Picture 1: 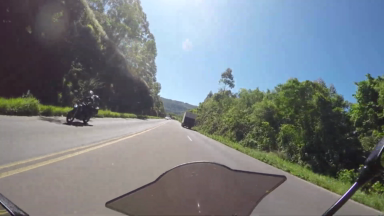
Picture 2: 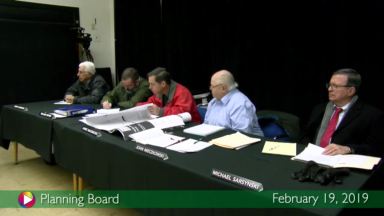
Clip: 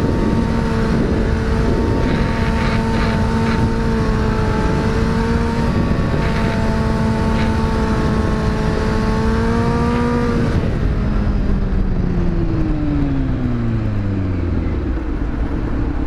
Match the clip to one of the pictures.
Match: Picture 1